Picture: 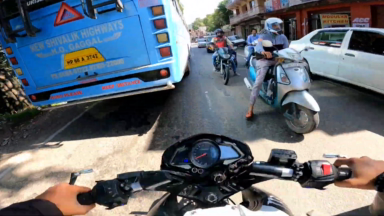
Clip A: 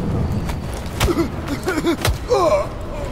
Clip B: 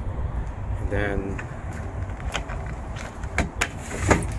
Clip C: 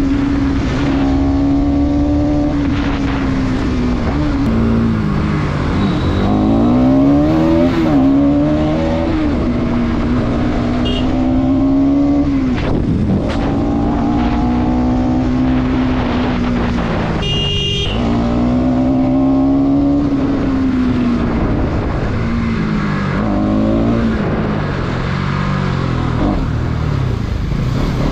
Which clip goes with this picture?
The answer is C